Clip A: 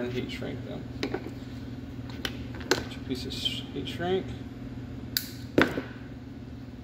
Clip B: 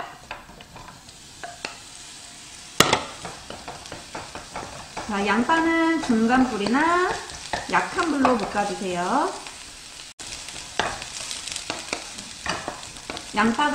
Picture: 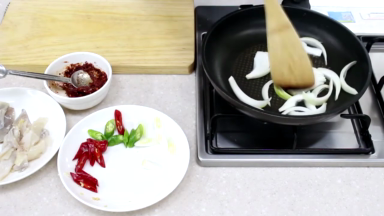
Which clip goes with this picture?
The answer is B